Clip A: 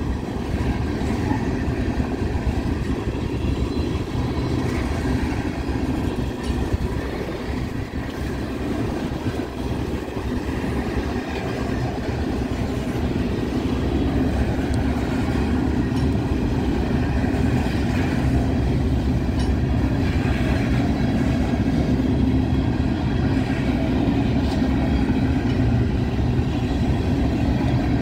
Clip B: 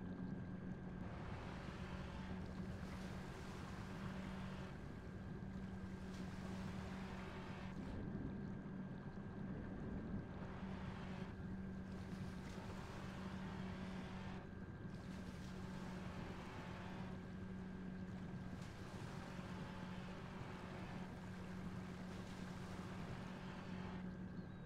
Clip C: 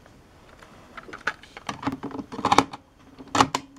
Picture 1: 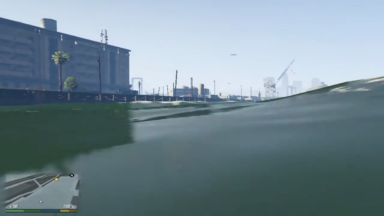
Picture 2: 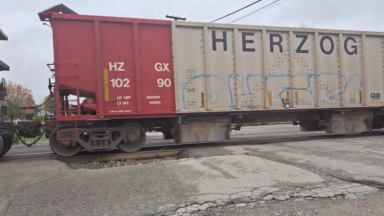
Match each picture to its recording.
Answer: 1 B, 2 A